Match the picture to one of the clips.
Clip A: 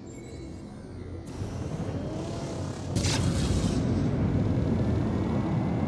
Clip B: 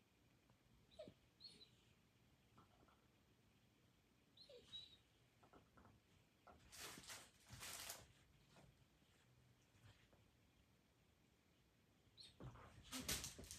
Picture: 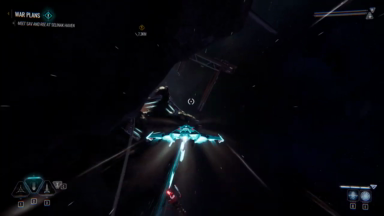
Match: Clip A